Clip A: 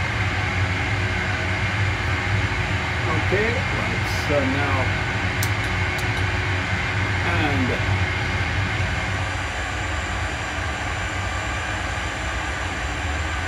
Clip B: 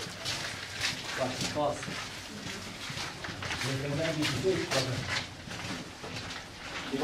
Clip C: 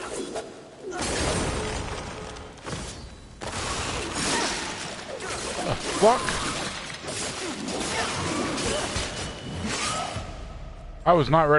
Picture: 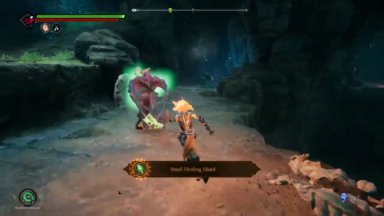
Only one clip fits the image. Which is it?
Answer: C